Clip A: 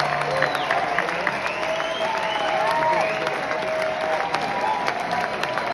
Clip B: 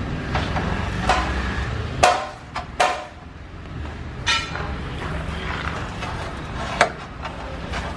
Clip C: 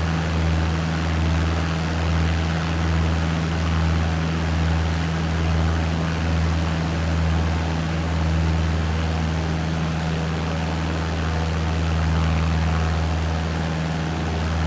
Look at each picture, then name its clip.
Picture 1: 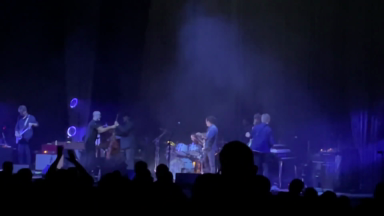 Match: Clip A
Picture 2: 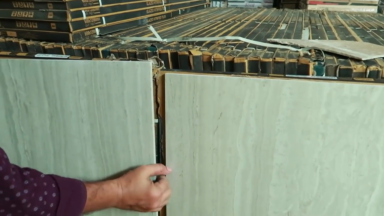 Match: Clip B